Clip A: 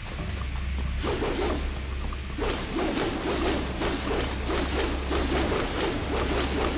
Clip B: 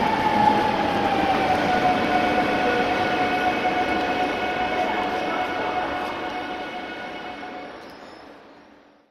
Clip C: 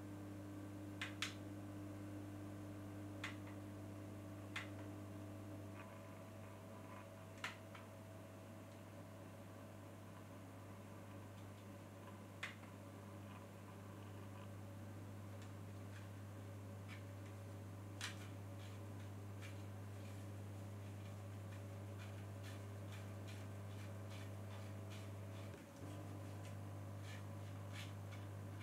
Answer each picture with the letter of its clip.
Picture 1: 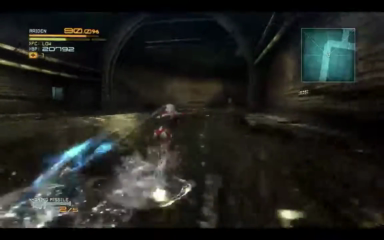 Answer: A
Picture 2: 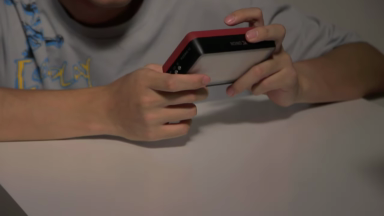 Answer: C